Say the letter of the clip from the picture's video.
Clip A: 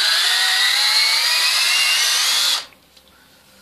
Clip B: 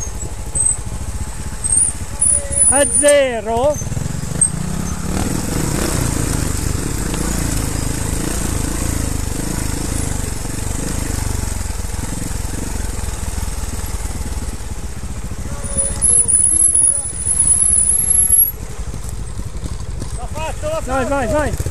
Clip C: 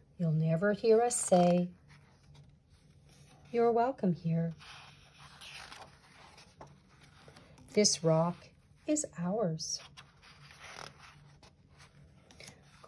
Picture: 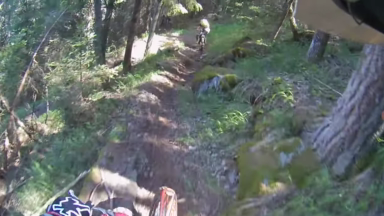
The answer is B